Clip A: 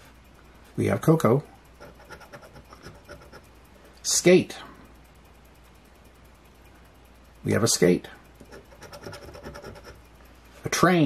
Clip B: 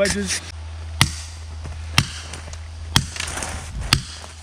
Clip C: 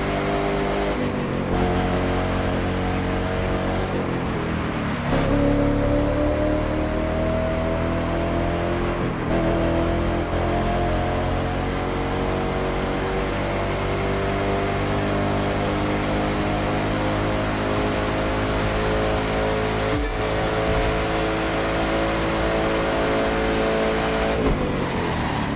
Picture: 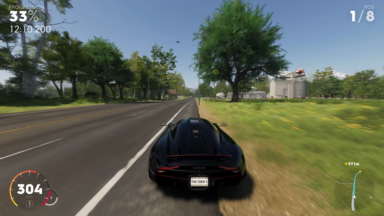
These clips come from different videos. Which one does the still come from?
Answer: C